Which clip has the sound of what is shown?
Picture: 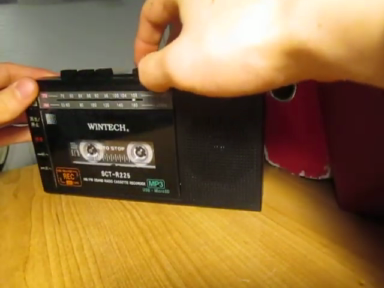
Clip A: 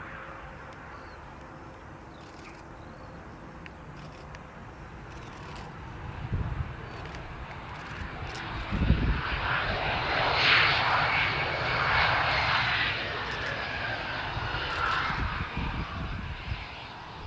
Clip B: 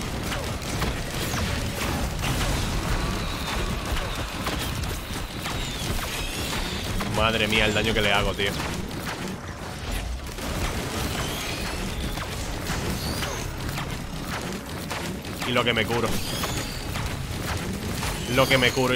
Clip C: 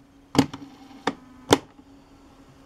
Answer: C